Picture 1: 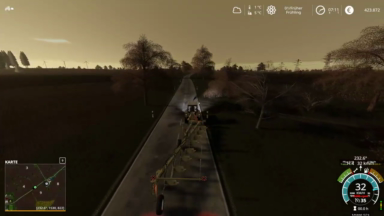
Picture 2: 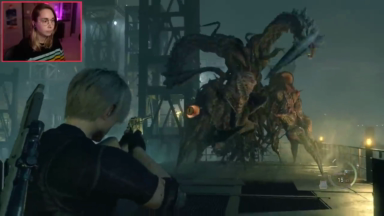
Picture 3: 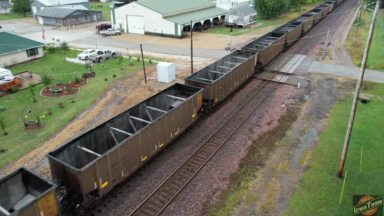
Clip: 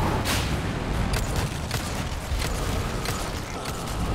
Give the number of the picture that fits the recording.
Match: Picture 2